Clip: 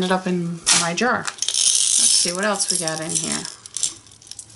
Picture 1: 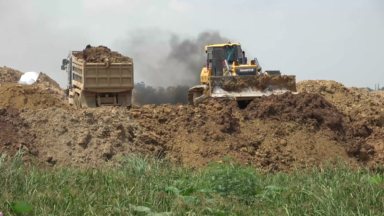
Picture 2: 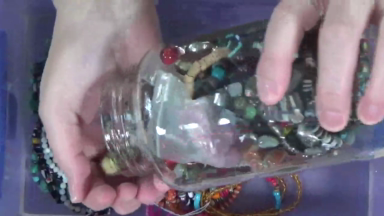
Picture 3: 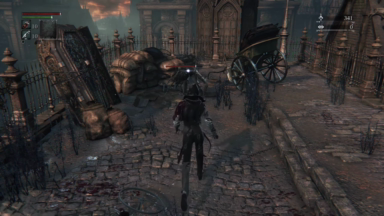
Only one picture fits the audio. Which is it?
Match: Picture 2